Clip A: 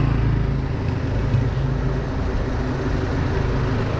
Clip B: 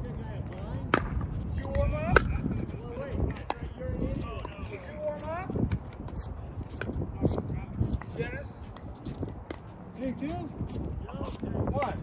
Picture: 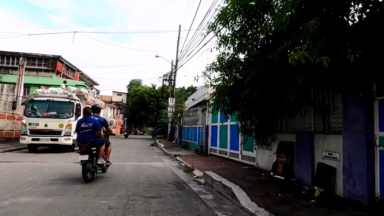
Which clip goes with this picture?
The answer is A